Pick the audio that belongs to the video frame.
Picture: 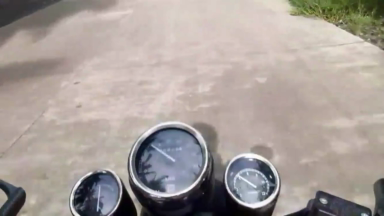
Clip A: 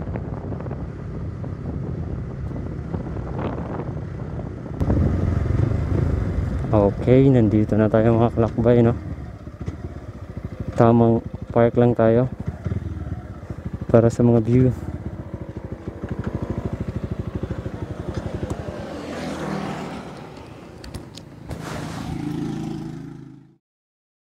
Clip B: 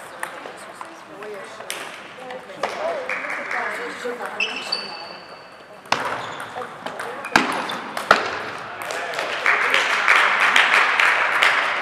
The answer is A